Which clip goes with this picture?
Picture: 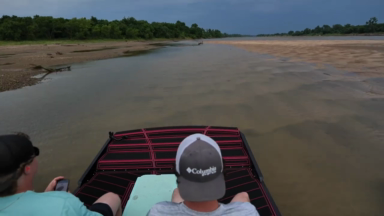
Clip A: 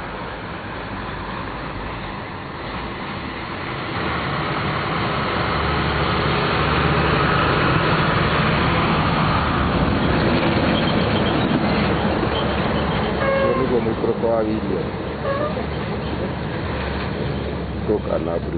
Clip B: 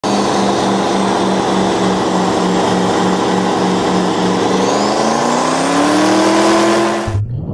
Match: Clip B